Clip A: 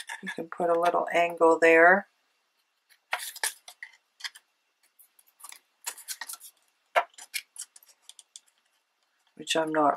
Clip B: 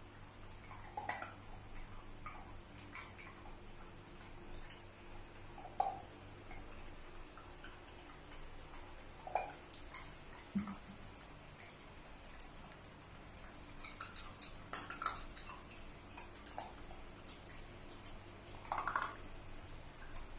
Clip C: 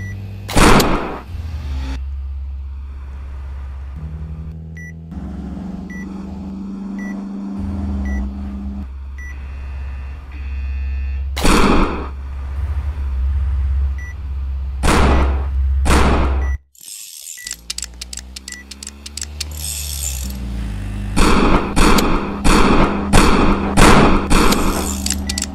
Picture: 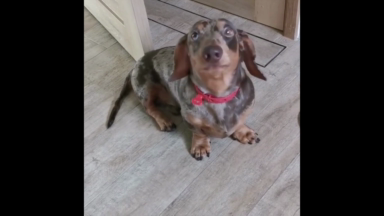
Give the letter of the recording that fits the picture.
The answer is B